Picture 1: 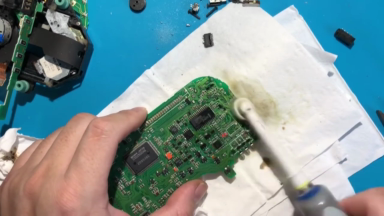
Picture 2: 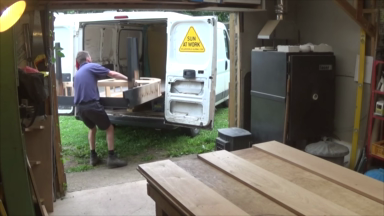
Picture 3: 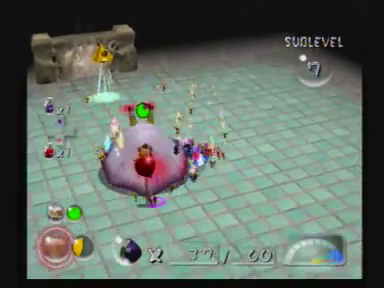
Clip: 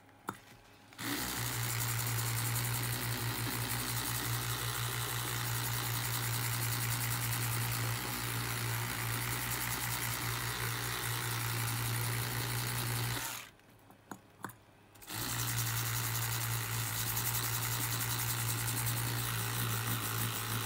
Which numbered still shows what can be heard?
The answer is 1